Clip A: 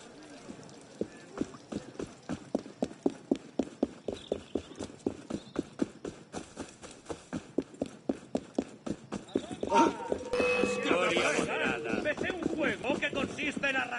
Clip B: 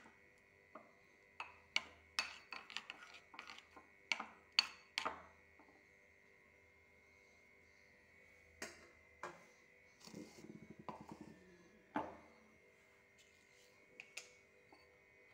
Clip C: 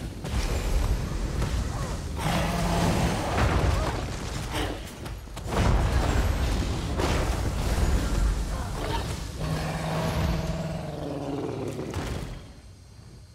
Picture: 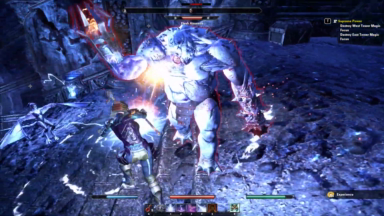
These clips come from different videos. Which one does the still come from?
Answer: C